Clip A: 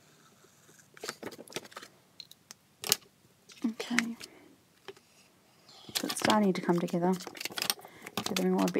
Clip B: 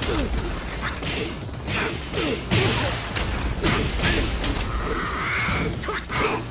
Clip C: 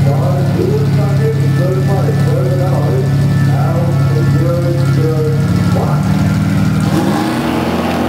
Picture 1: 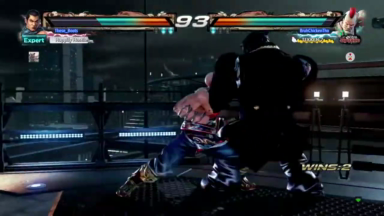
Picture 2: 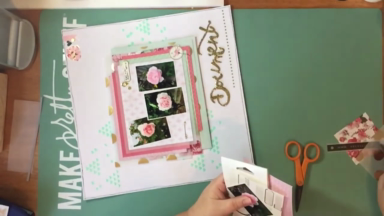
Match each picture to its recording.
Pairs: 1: B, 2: A